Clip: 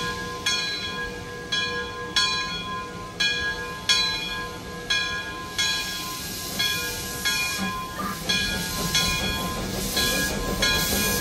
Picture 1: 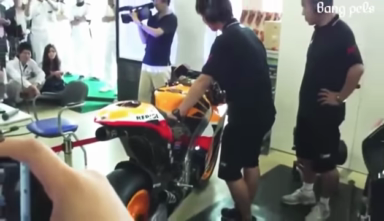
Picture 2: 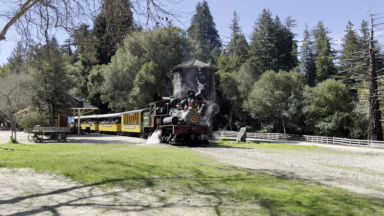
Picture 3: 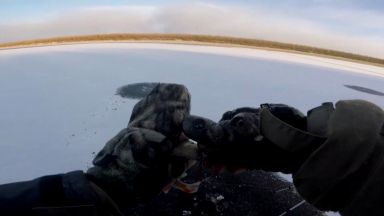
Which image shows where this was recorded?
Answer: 2